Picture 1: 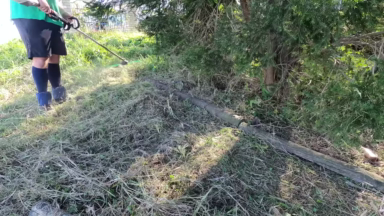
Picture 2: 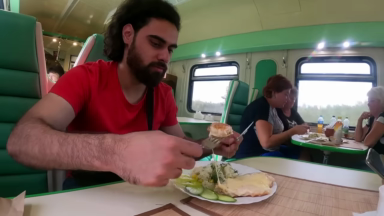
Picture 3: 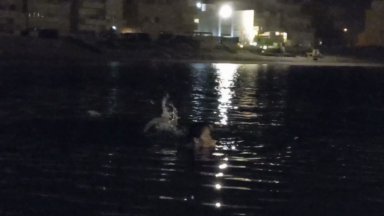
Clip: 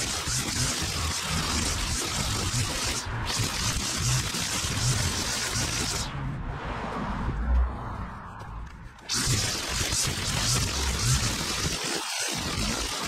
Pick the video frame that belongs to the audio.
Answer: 1